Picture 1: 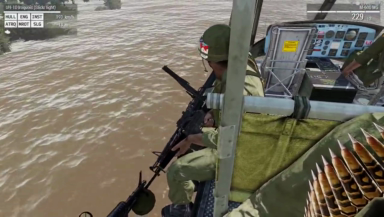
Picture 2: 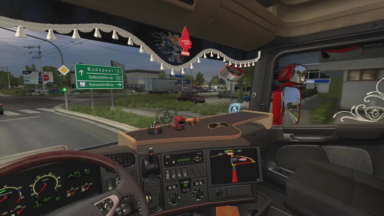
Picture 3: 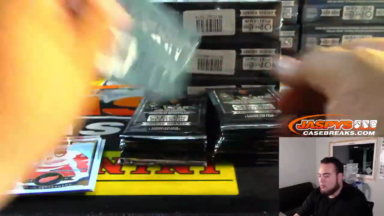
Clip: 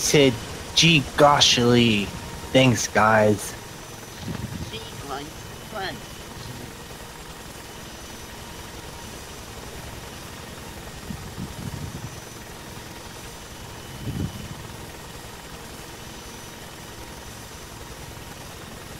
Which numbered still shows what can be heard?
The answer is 1